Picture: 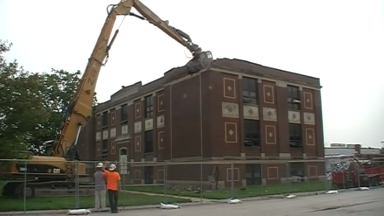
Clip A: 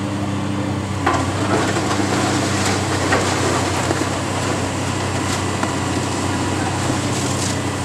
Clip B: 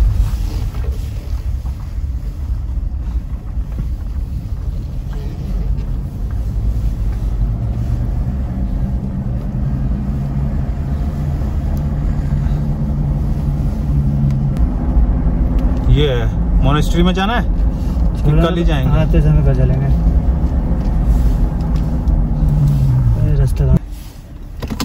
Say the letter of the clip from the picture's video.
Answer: A